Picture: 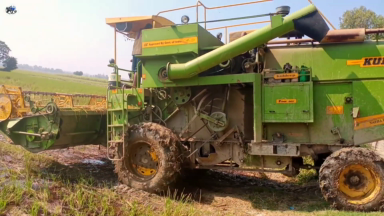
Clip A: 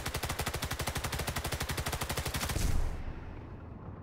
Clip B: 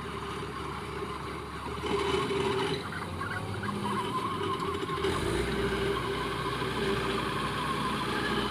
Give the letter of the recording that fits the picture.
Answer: B